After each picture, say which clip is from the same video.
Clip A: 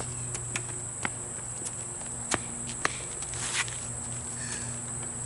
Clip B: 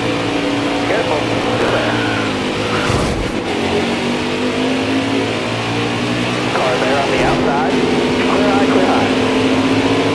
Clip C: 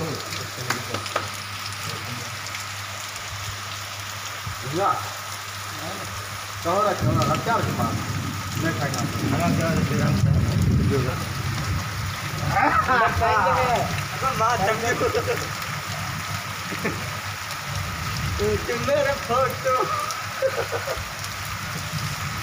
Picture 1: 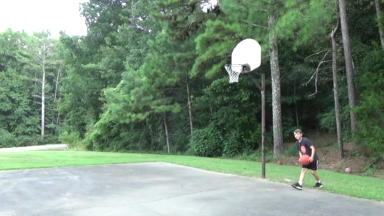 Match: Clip A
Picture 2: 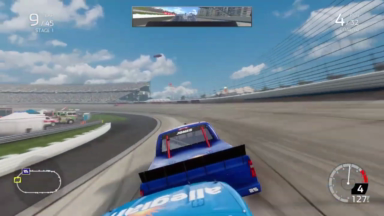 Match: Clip B